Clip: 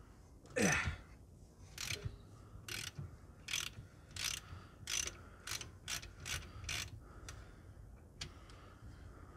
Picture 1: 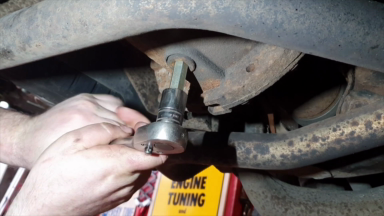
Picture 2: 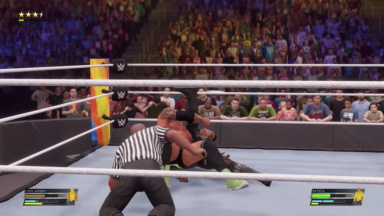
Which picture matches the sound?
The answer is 1